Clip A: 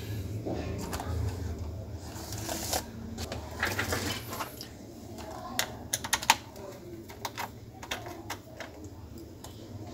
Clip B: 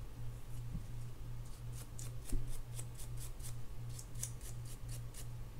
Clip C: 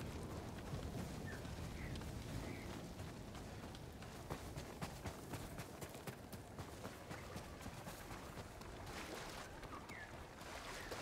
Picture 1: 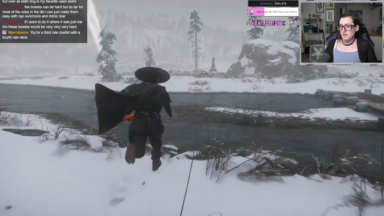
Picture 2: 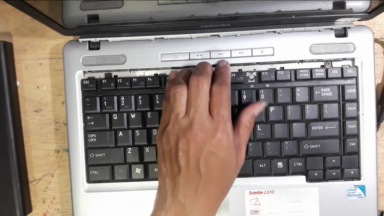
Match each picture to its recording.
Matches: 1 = C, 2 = A